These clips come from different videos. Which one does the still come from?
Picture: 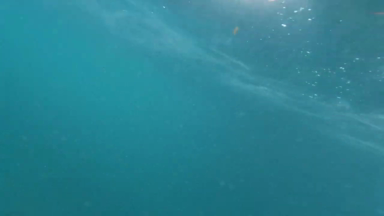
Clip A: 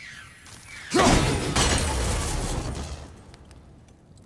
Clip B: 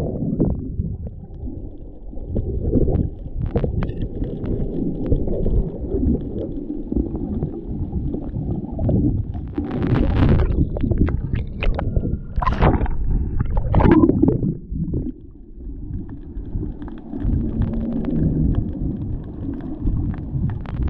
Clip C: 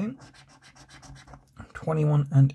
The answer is B